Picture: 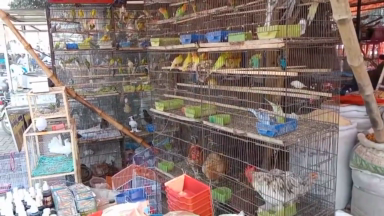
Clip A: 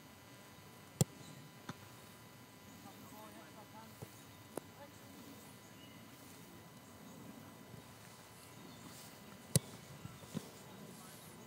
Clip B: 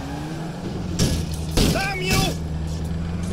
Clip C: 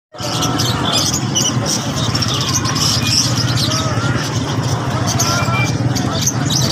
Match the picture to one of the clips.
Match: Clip C